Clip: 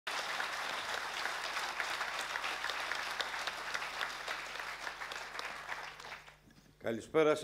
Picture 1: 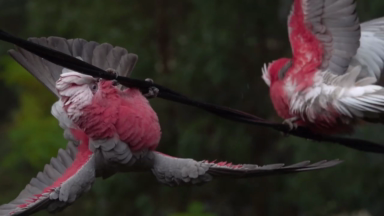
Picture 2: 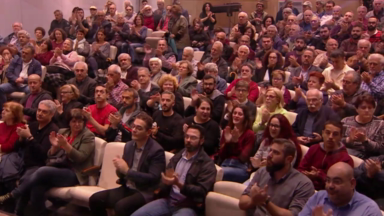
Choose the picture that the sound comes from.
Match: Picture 2